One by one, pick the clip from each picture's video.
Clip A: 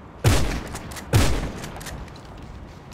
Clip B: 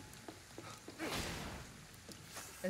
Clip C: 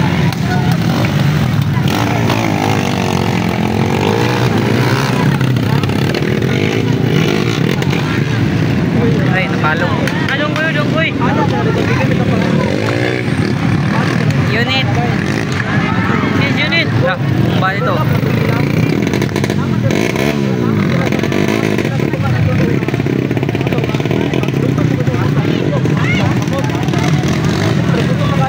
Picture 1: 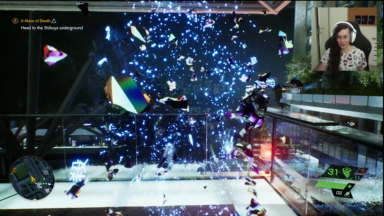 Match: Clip B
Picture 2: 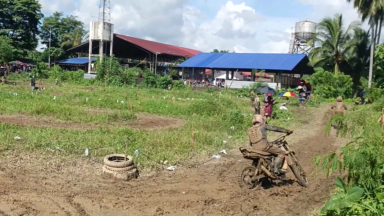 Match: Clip C